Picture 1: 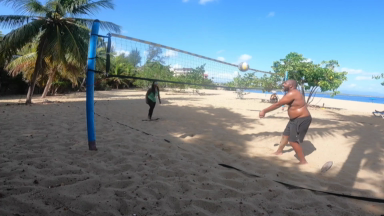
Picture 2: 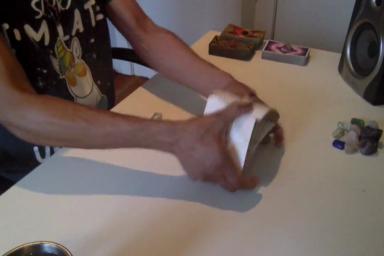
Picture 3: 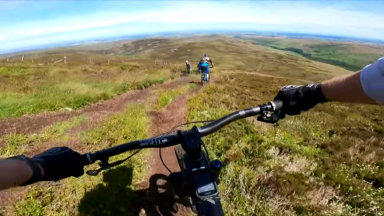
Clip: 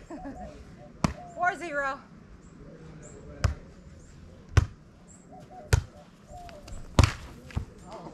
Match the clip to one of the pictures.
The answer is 1